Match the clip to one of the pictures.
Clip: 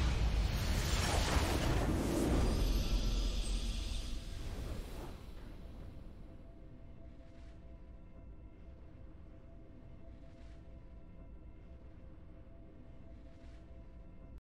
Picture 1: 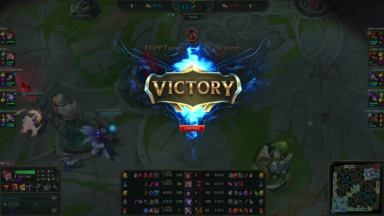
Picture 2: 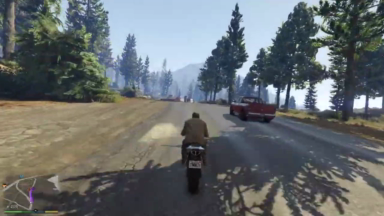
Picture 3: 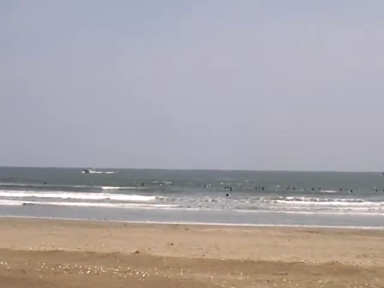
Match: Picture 1